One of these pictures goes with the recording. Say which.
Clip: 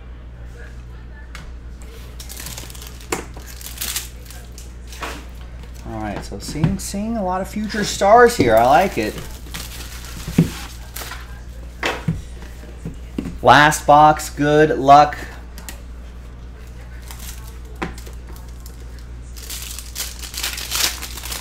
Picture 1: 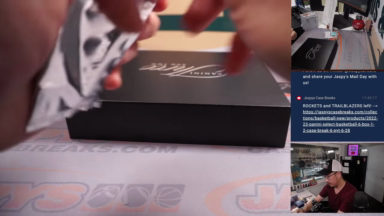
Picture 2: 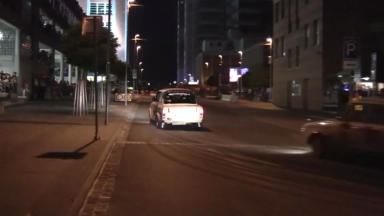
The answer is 1